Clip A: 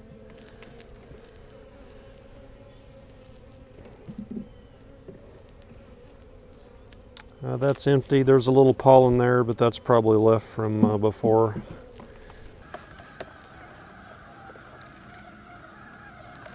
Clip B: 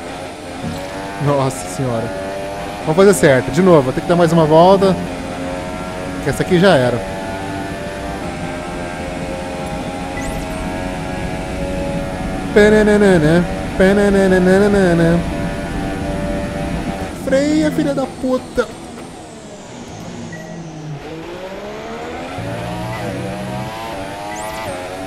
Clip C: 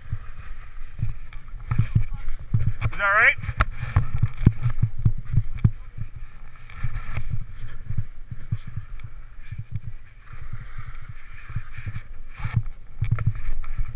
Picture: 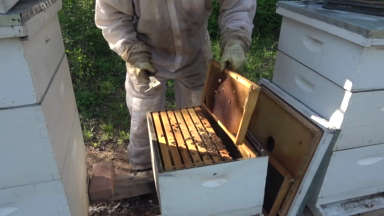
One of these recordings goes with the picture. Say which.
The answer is A